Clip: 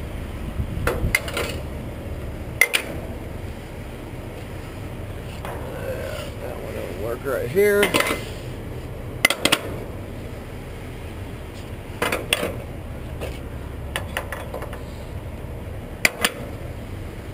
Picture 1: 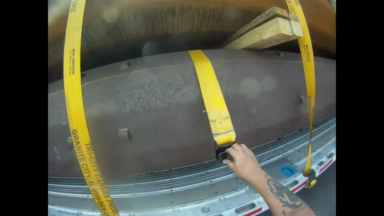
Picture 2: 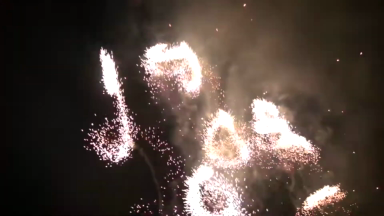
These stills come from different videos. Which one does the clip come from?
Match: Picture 1